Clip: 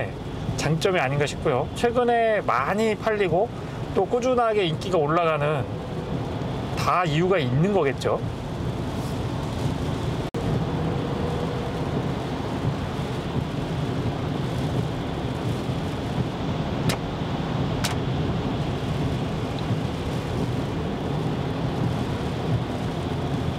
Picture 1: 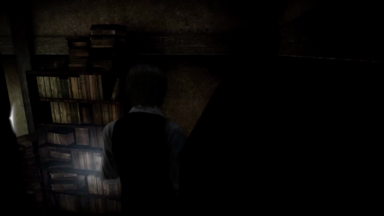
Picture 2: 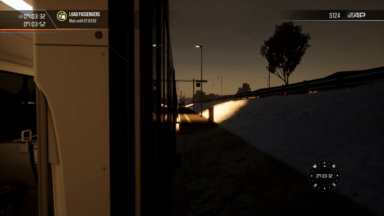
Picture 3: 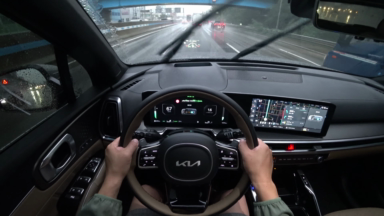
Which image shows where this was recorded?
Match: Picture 3